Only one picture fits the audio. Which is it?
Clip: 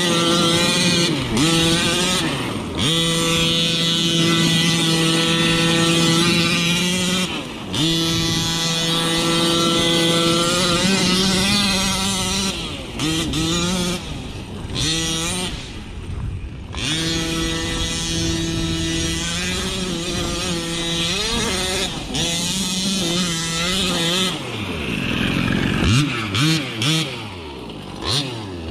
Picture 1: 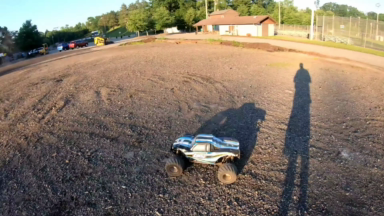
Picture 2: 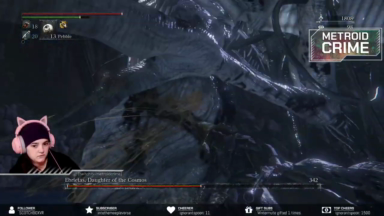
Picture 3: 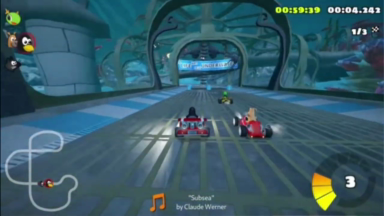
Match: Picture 1